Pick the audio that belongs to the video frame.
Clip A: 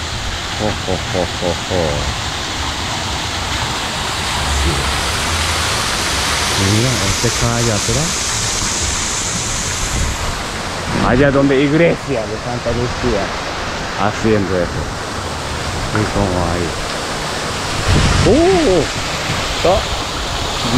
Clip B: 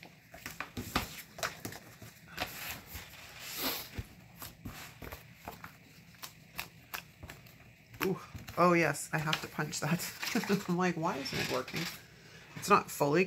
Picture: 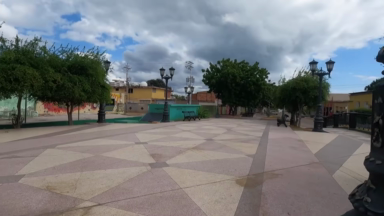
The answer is A